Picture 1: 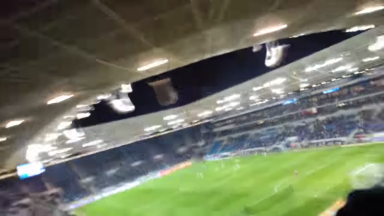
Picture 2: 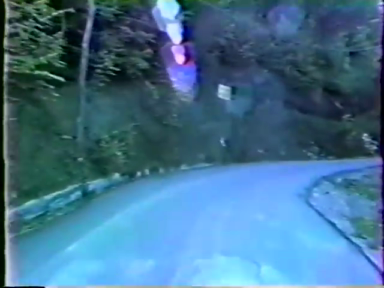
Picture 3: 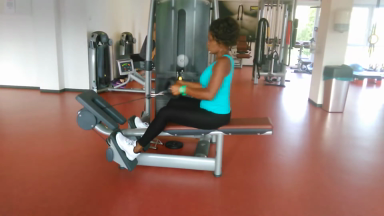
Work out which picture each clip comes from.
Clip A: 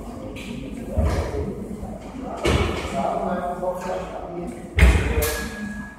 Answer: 3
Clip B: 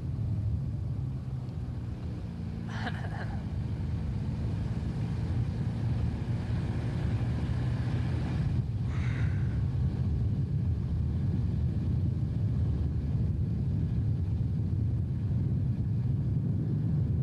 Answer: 2